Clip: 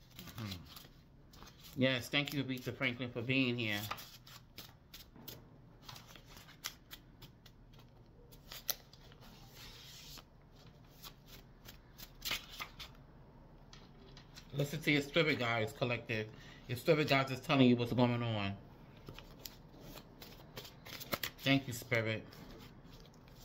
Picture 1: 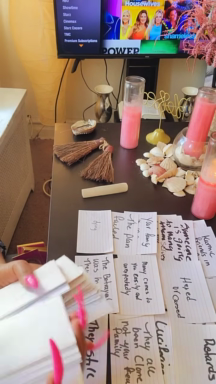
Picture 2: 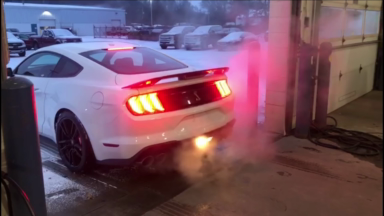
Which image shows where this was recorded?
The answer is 1